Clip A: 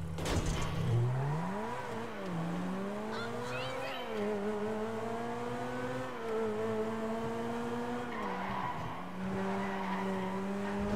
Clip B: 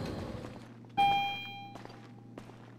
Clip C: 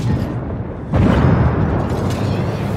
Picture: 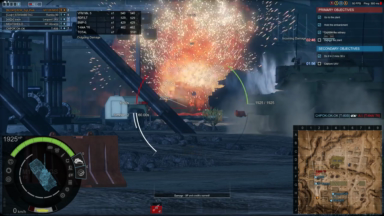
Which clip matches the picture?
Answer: C